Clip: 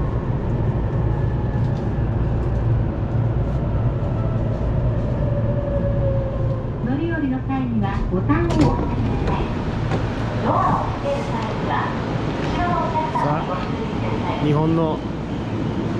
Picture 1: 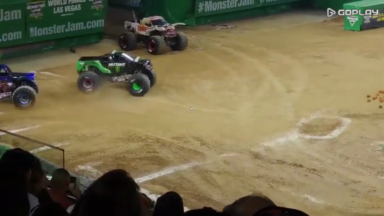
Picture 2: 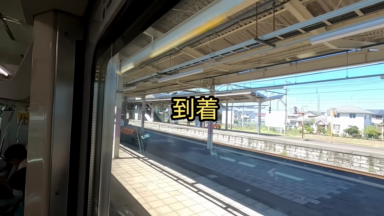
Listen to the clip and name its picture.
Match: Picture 2